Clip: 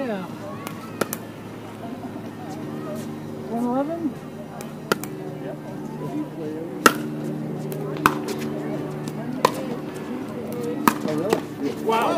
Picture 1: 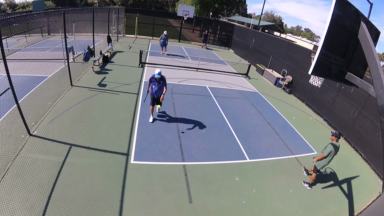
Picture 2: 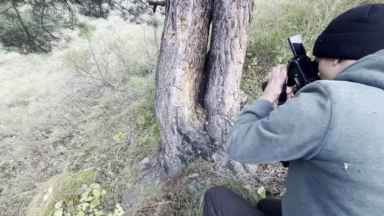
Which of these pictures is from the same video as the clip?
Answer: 1